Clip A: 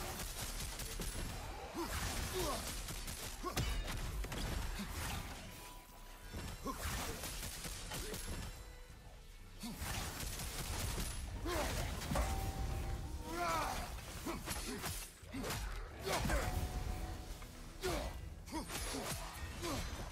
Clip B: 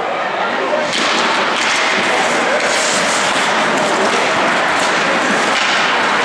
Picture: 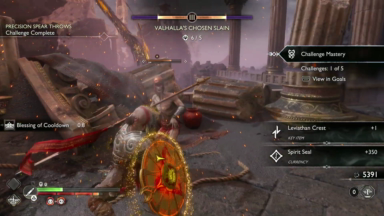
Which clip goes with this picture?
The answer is A